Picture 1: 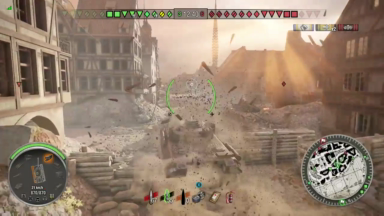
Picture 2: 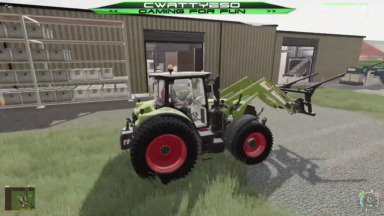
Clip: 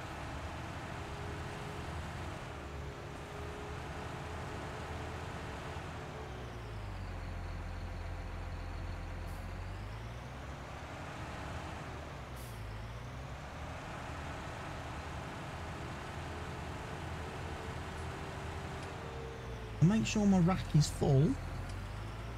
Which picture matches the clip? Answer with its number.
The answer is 2